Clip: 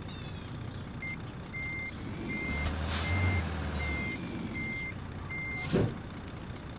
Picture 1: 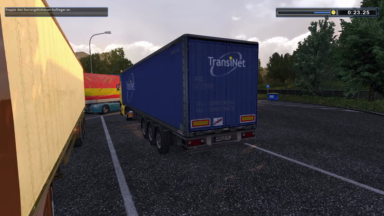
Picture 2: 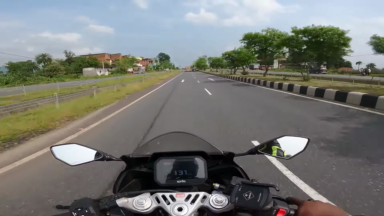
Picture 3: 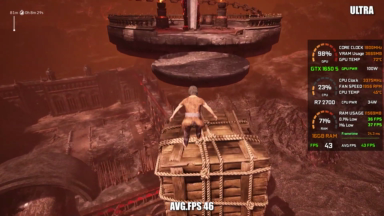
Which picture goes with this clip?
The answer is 1